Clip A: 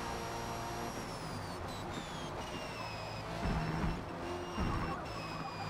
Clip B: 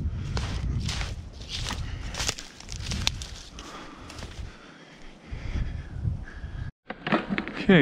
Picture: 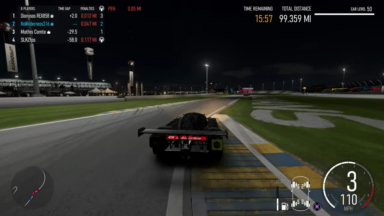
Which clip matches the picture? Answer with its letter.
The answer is A